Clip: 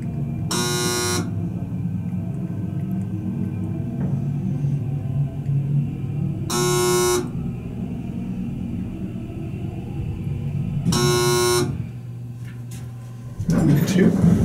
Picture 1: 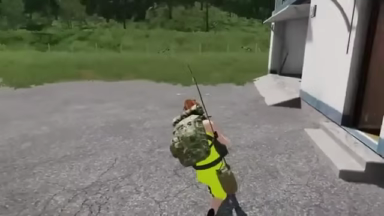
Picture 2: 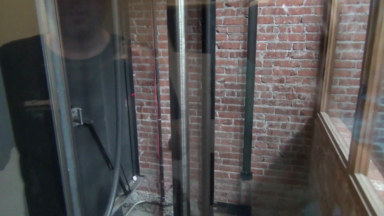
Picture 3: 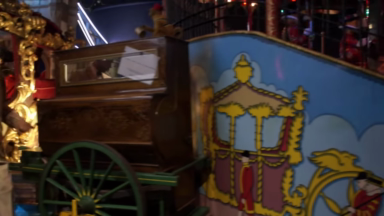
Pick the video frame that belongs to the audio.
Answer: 2